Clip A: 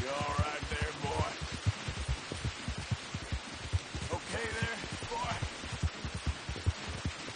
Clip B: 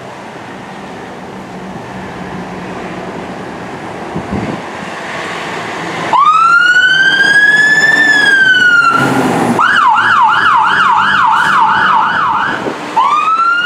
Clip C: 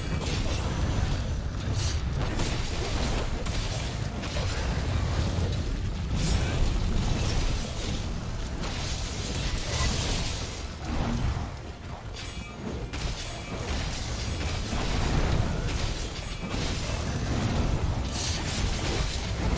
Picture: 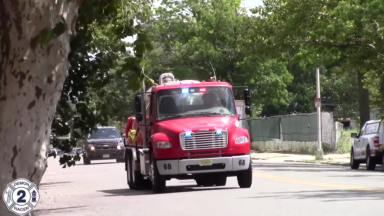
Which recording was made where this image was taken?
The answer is B